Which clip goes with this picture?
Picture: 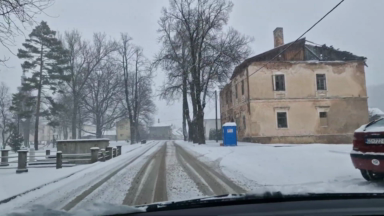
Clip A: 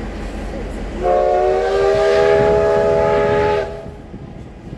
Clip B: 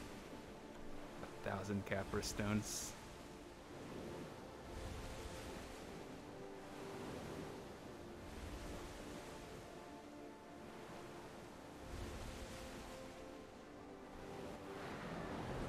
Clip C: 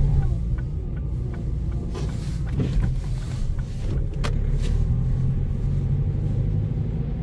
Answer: C